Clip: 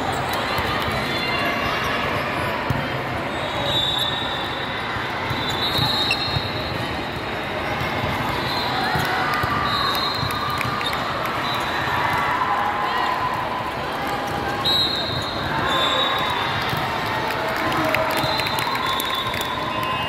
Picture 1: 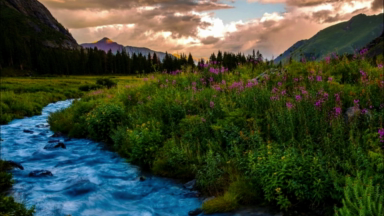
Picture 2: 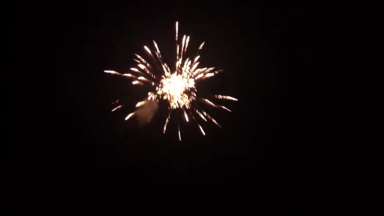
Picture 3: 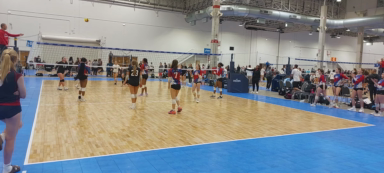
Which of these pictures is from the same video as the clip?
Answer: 3